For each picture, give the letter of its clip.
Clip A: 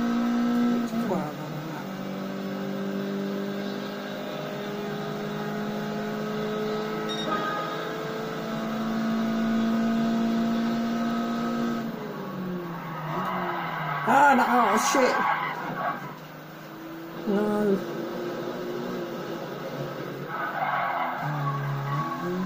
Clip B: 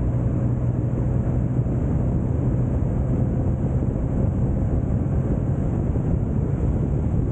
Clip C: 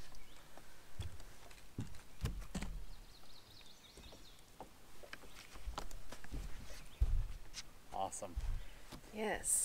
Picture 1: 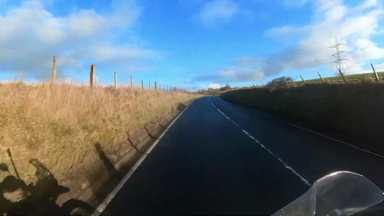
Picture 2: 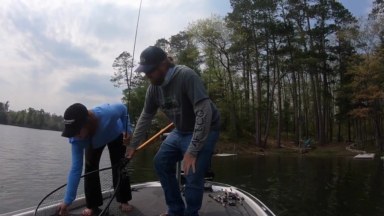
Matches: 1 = B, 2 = C